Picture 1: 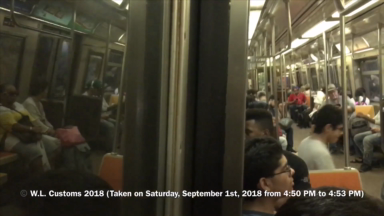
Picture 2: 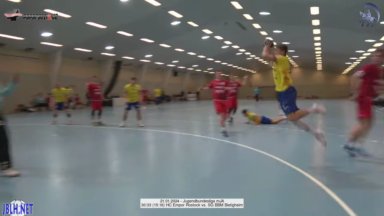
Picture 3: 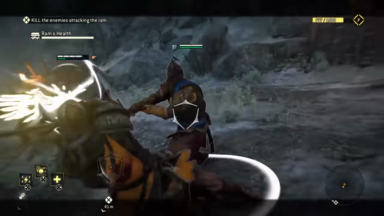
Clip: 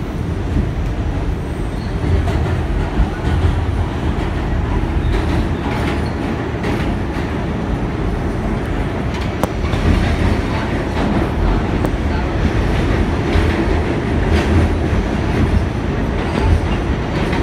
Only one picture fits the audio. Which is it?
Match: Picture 1